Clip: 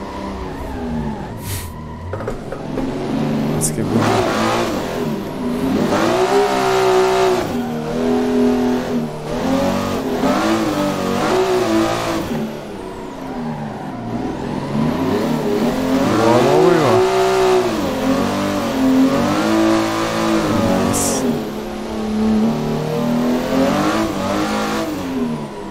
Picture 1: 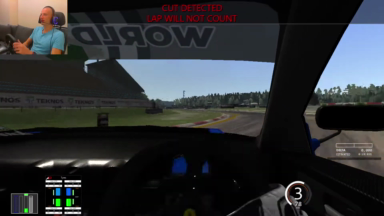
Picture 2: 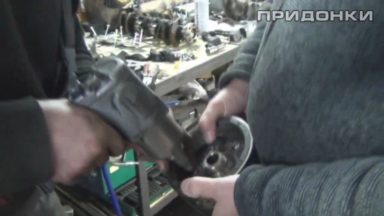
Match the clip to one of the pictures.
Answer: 1